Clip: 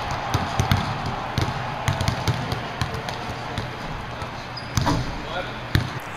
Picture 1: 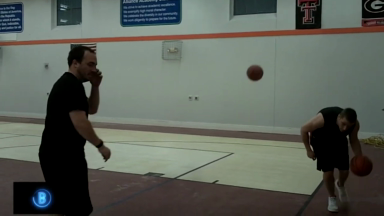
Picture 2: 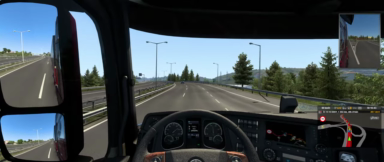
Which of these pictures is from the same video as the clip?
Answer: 1